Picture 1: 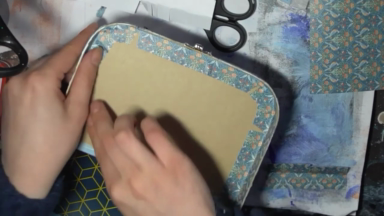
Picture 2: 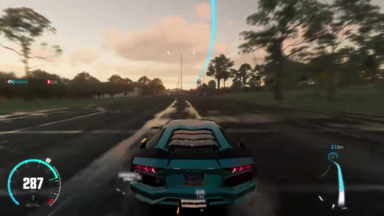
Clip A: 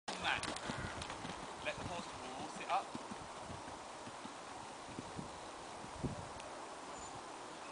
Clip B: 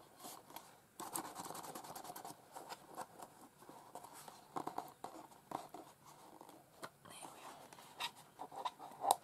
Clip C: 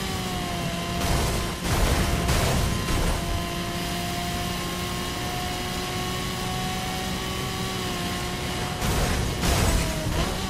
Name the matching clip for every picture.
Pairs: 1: B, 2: C